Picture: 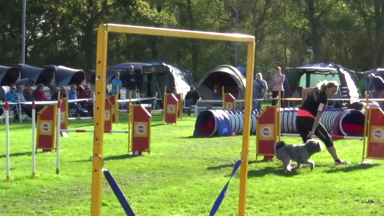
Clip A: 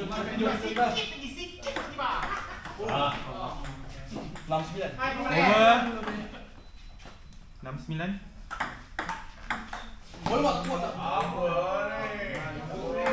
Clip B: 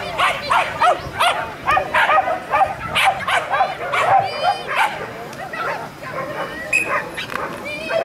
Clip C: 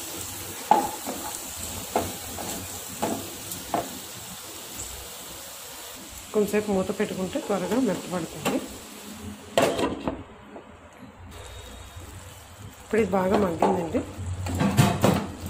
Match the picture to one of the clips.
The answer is B